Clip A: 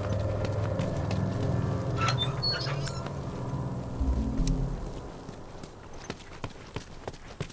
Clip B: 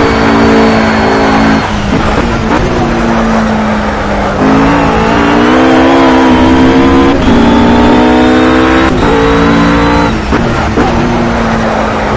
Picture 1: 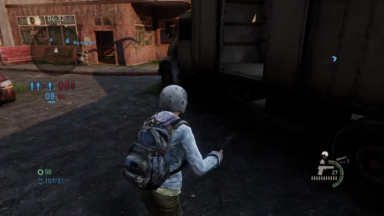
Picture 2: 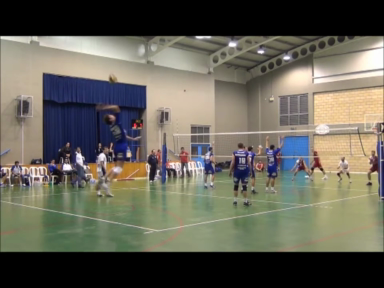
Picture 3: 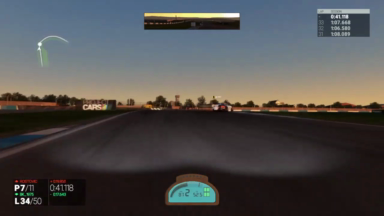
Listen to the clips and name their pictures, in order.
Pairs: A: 1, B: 3